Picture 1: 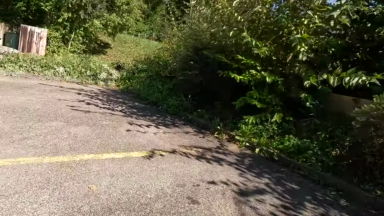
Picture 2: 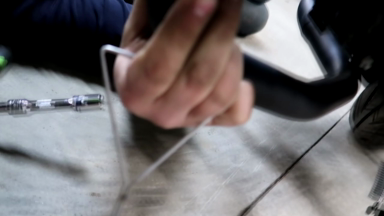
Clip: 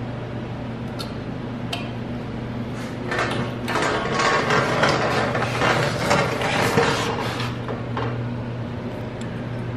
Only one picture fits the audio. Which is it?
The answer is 2